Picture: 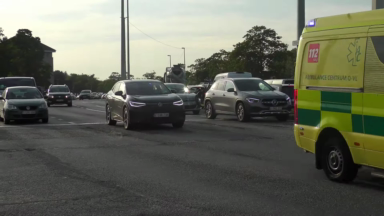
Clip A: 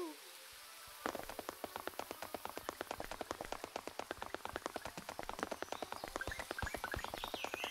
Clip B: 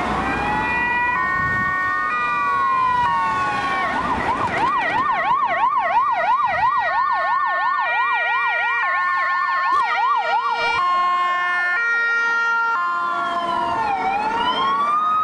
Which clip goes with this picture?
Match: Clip B